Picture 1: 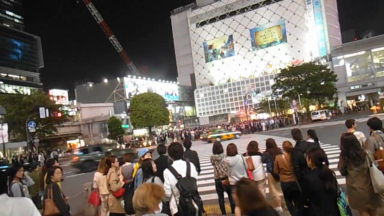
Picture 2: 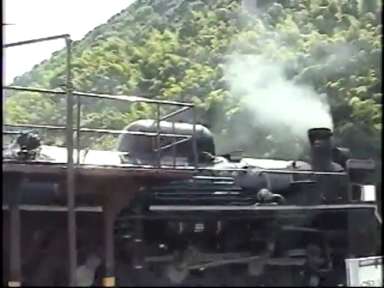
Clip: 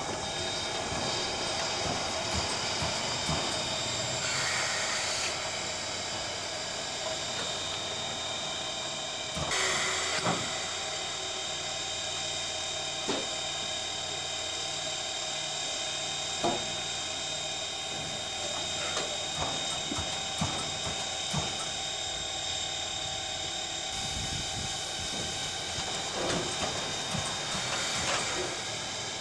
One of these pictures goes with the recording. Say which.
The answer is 2